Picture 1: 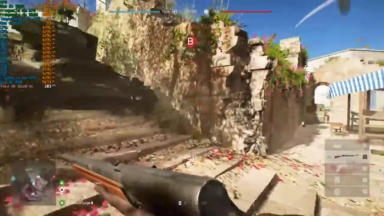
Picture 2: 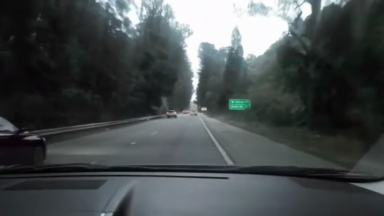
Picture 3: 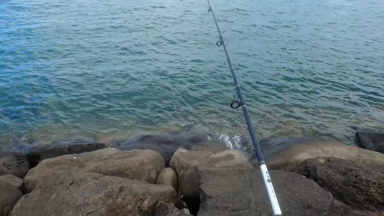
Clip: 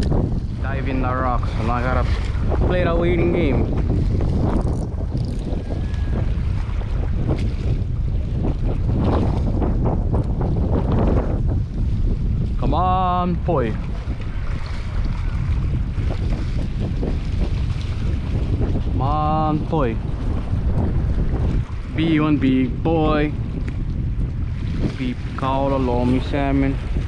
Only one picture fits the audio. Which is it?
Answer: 3